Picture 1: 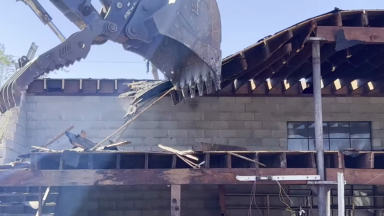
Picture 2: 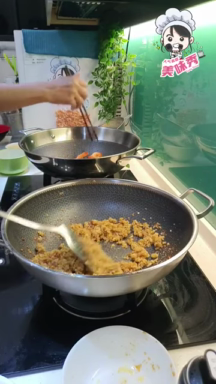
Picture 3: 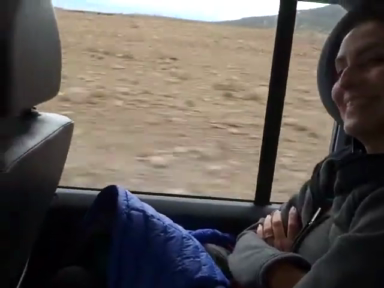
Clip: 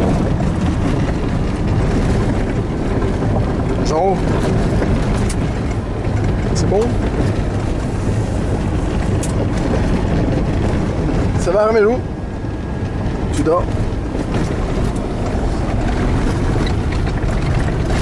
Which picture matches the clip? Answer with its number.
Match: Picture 3